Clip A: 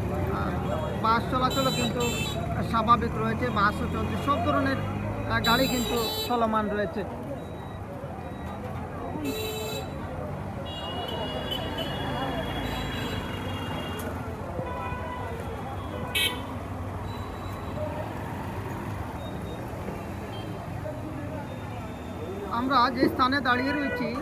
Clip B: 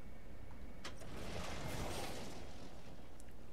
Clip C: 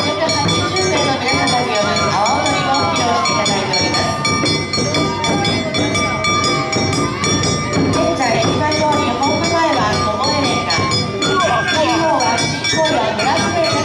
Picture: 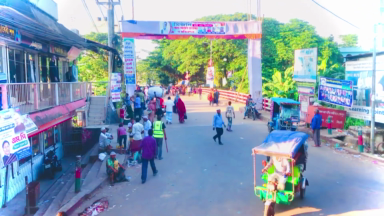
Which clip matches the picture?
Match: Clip A